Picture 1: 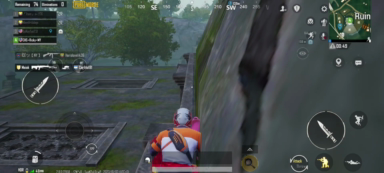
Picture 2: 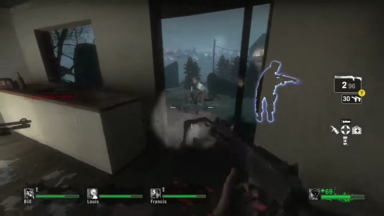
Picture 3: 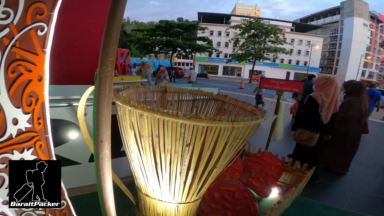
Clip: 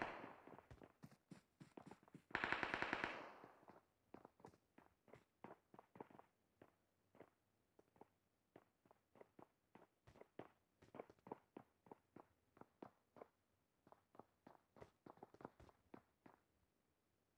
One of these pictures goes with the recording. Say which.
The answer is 1